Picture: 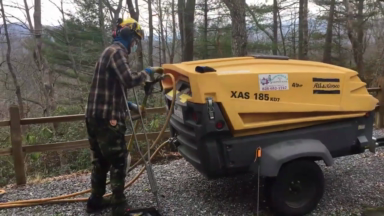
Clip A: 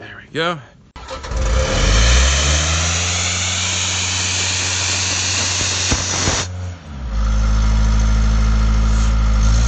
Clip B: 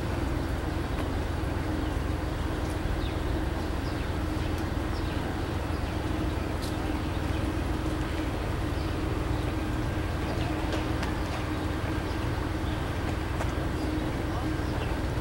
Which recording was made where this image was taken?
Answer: A